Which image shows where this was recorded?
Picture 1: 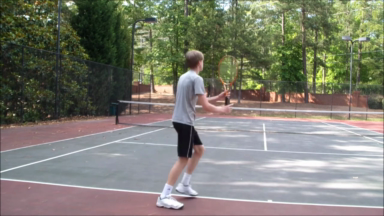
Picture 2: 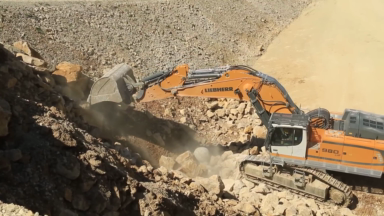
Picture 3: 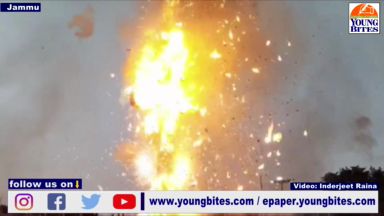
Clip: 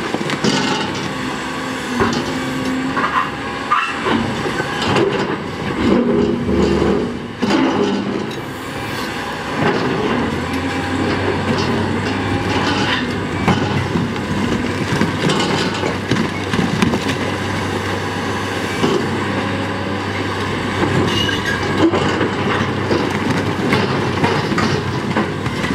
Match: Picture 2